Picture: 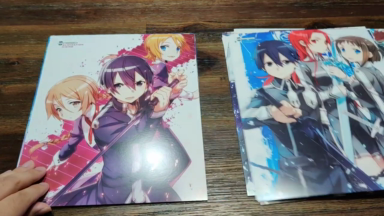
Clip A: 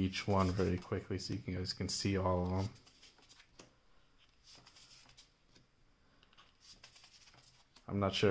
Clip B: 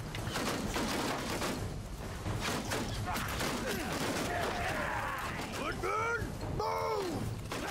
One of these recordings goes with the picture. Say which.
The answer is A